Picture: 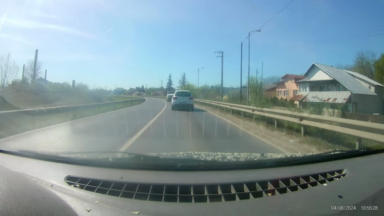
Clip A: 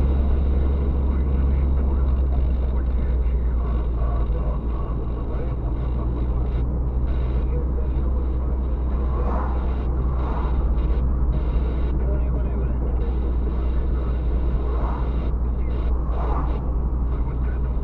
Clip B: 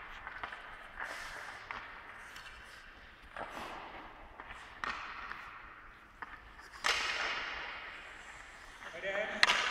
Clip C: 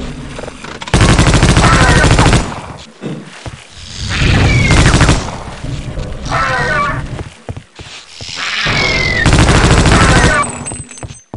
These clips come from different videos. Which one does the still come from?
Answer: A